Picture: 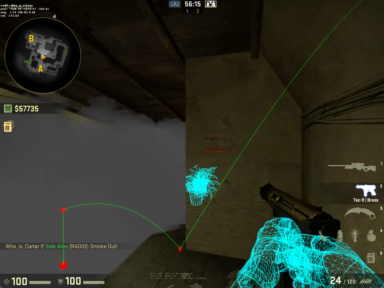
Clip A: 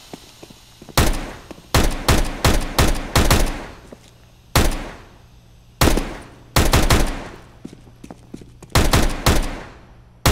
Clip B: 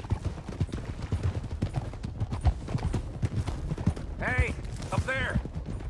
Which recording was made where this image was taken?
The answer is A